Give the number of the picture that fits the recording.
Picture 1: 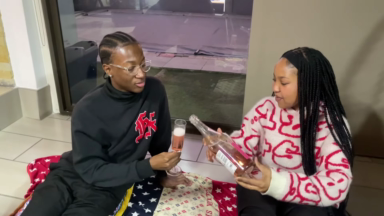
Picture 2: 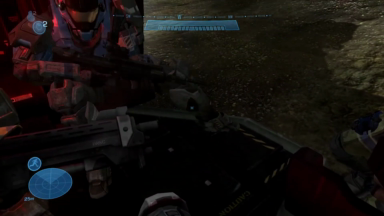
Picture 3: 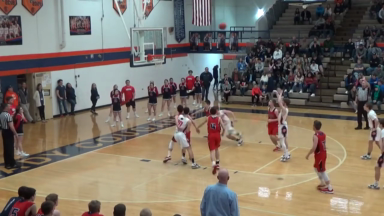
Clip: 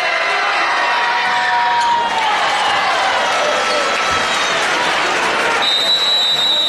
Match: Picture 3